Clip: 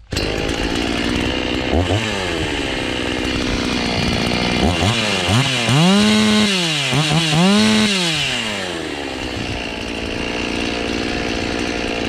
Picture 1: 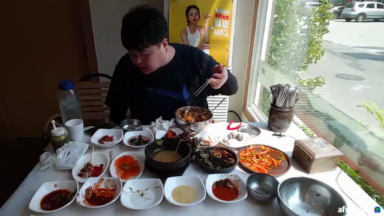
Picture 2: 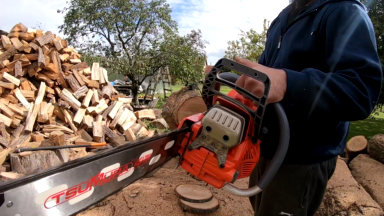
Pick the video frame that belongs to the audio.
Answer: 2